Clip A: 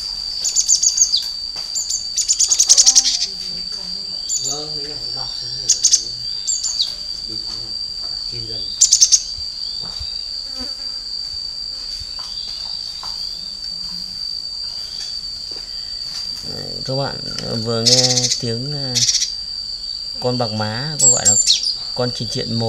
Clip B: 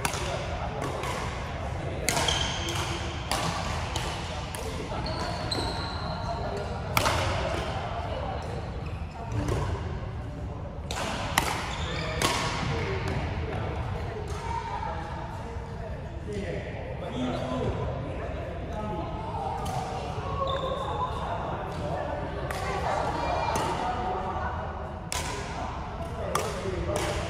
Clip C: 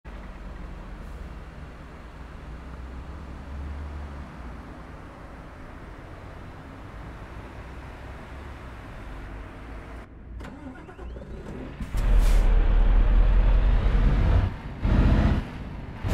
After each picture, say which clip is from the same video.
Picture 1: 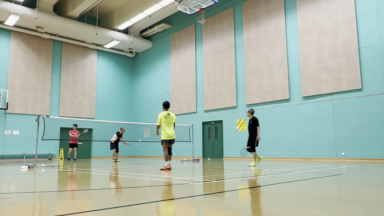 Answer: B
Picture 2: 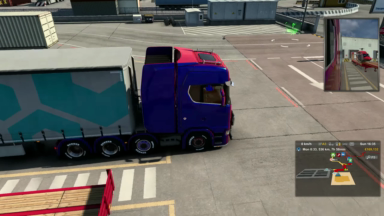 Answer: C